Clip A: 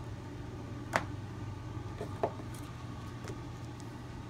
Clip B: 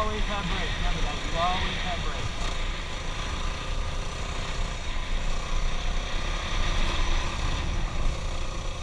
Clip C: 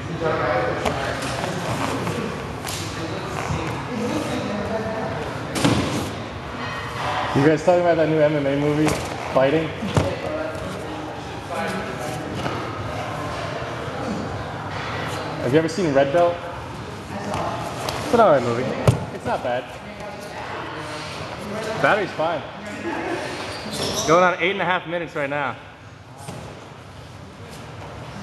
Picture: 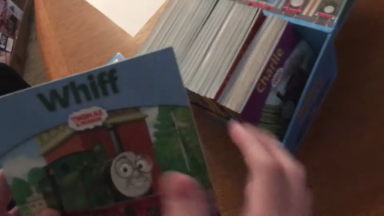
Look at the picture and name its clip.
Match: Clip A